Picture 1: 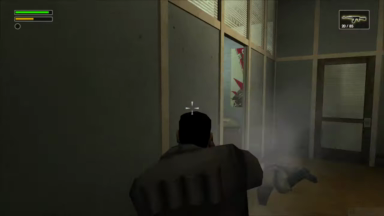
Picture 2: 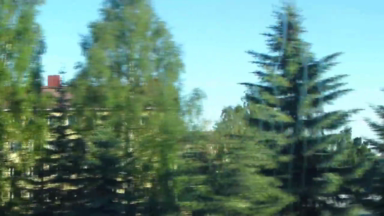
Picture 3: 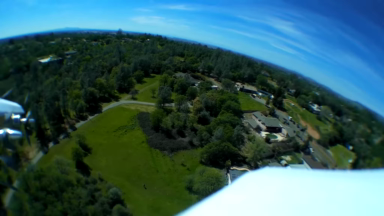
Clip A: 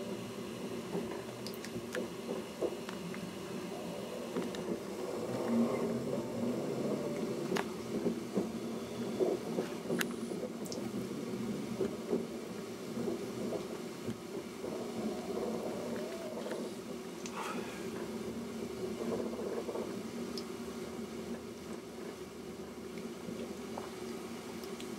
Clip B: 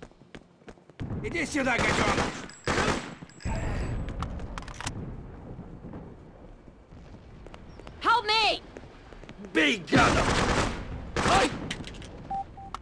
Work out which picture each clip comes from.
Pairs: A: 2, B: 1